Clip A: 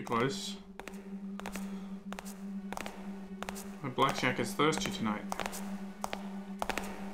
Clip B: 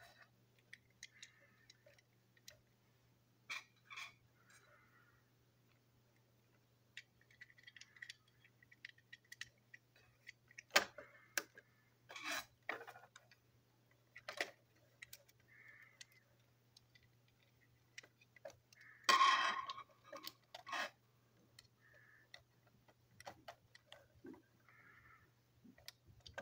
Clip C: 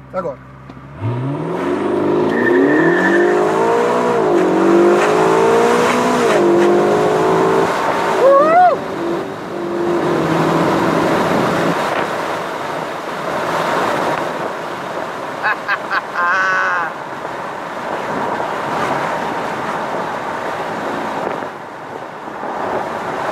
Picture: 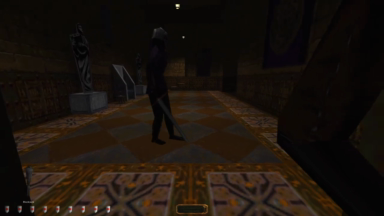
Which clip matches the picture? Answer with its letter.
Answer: A